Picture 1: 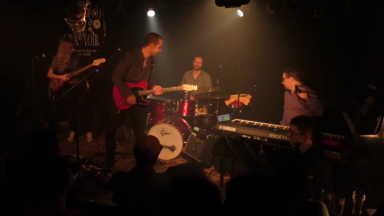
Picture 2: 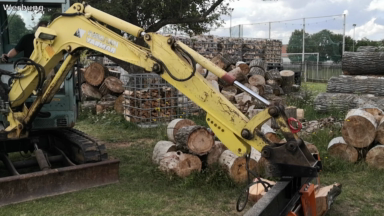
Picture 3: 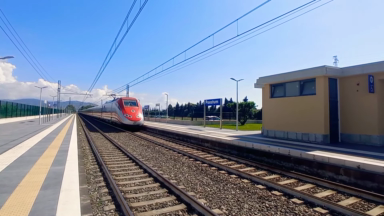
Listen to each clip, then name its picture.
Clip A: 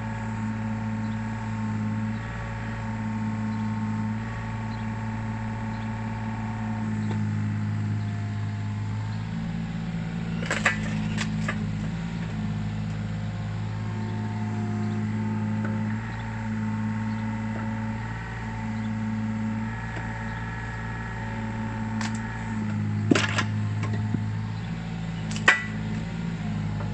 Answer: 2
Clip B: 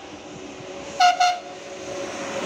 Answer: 3